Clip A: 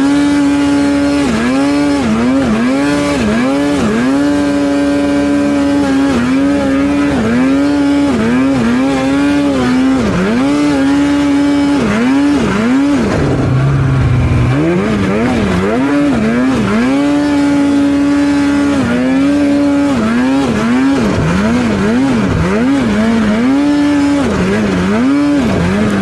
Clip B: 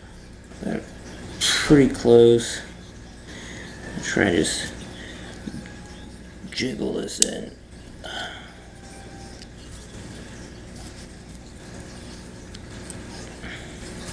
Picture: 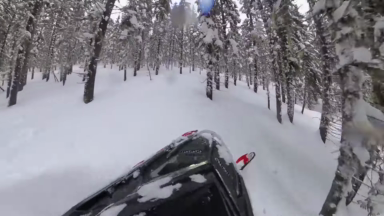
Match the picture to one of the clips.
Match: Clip A